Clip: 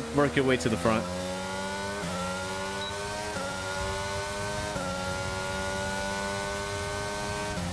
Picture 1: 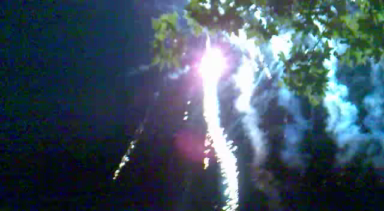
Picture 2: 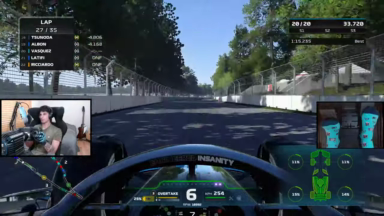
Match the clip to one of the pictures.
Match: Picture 2